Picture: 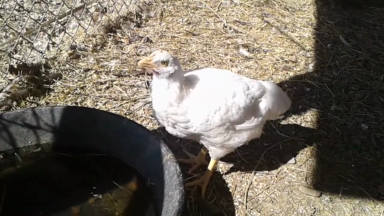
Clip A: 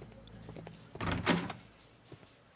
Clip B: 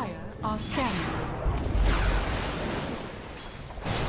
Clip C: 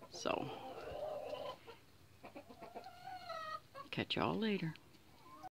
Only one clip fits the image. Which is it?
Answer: C